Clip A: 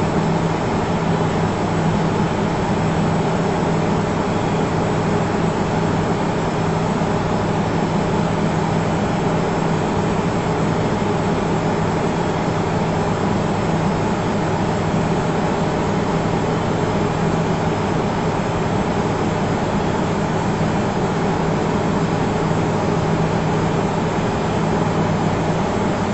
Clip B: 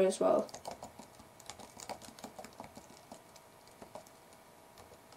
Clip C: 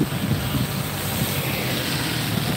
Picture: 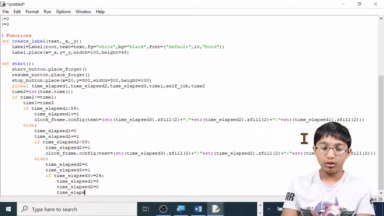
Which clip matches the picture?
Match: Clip B